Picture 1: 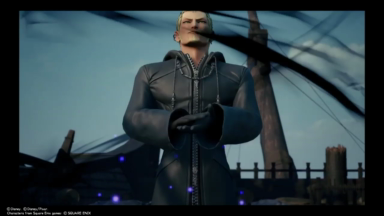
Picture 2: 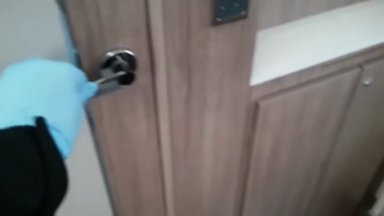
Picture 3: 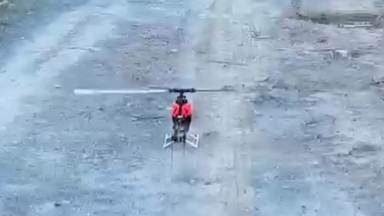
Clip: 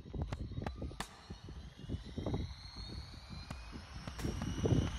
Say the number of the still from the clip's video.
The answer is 3